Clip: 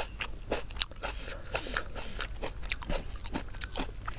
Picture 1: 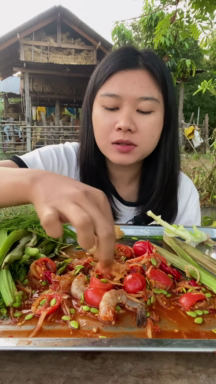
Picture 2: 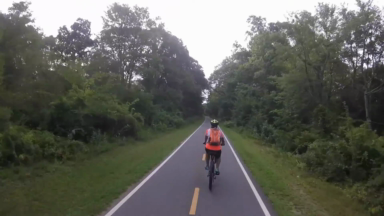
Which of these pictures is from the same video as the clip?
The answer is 1